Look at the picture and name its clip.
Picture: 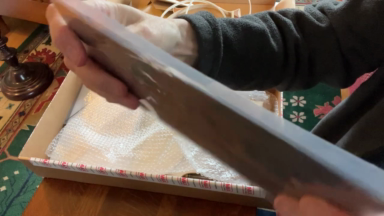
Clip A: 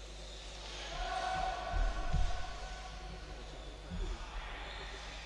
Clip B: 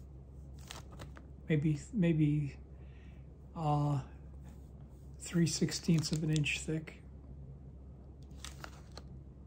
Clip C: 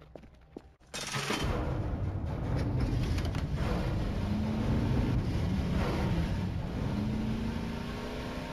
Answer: B